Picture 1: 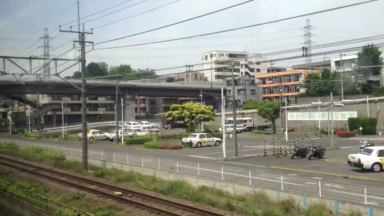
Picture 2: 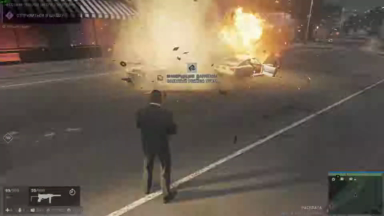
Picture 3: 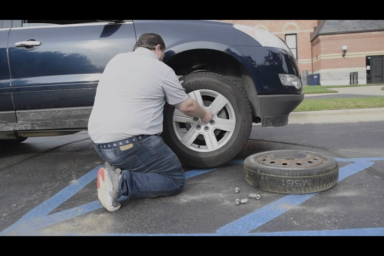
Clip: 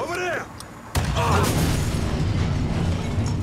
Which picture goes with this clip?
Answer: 2